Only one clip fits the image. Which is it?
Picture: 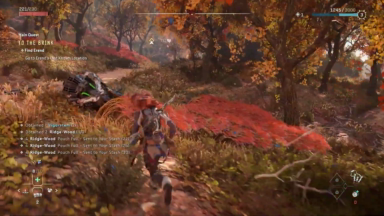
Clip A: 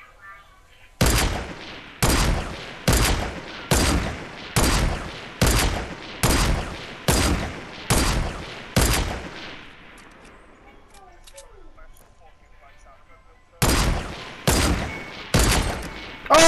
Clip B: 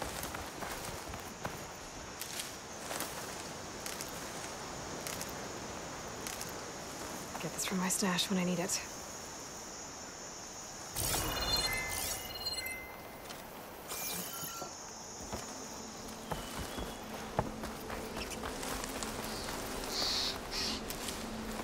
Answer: B